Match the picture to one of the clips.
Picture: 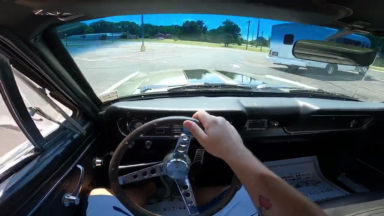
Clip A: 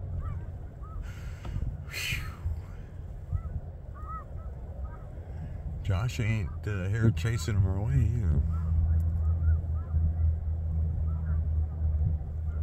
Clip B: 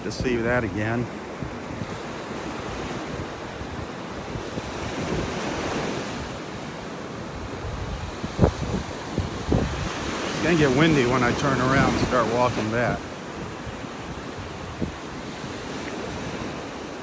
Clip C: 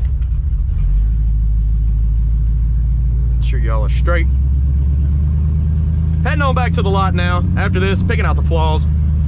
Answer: C